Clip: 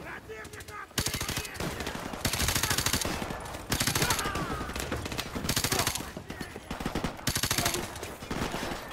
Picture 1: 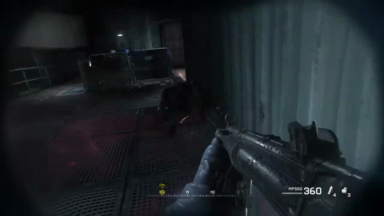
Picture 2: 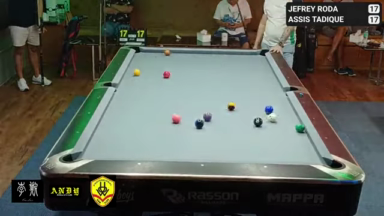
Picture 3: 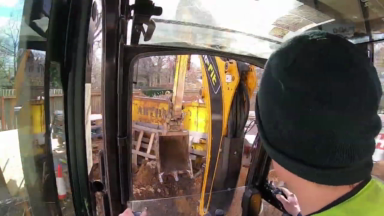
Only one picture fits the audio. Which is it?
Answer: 1